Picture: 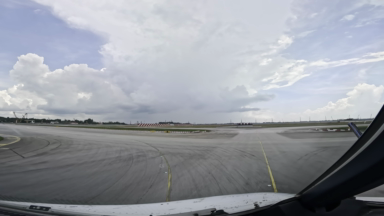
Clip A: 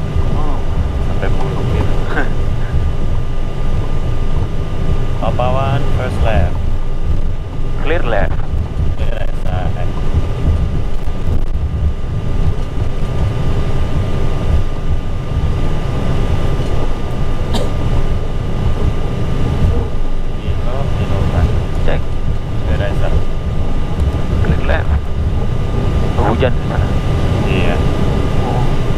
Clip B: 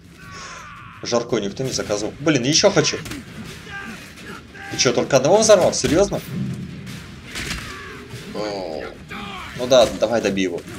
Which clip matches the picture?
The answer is A